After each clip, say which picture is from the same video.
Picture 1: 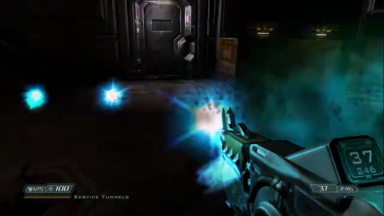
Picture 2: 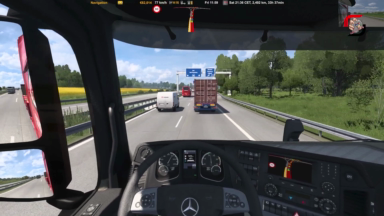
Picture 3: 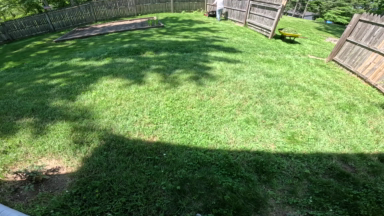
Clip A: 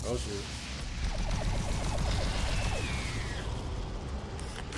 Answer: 1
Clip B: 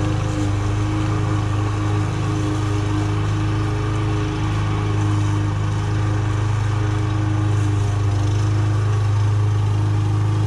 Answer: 3